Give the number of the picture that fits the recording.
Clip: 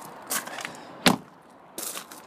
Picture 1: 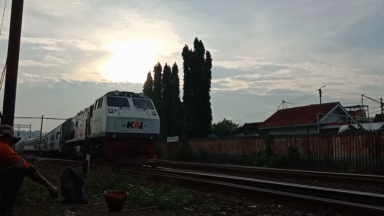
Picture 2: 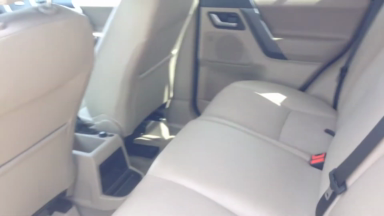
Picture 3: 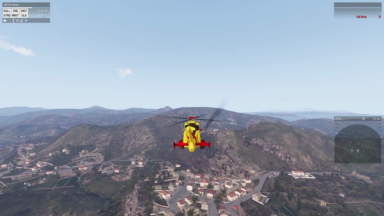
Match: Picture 2